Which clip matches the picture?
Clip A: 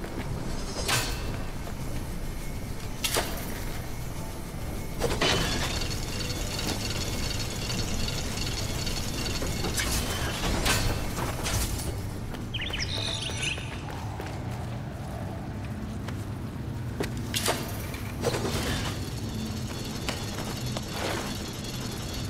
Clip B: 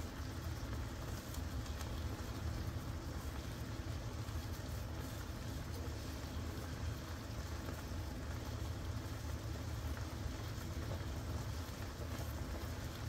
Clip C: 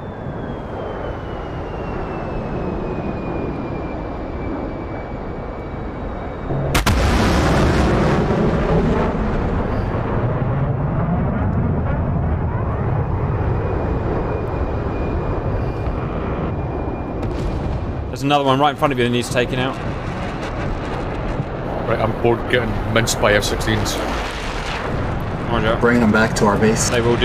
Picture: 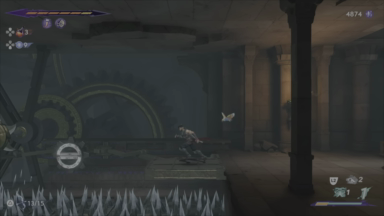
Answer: A